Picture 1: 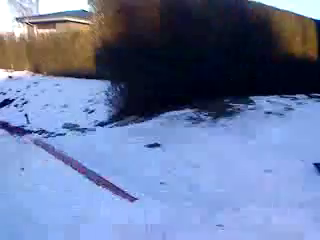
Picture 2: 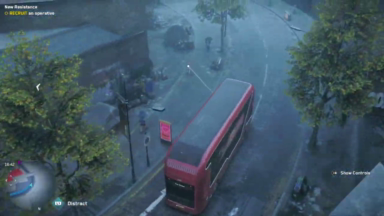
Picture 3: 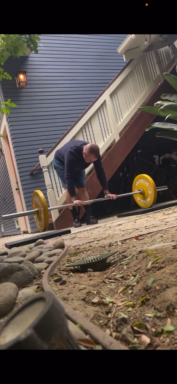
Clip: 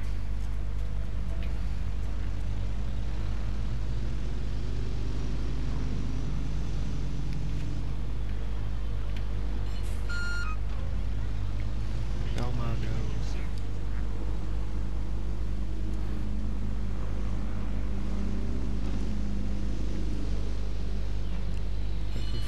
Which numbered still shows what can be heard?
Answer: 2